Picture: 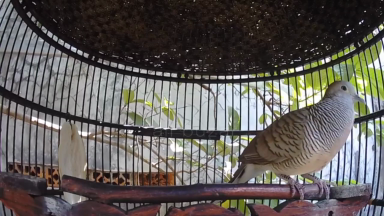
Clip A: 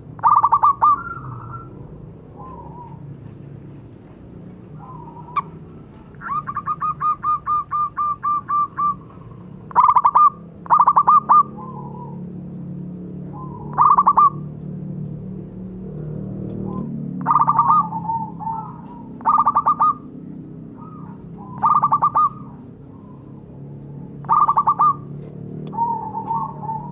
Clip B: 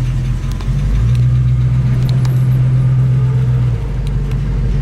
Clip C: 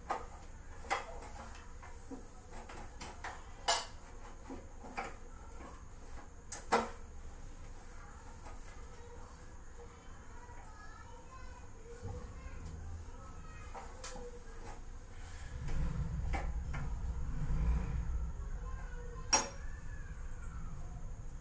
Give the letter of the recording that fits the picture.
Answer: A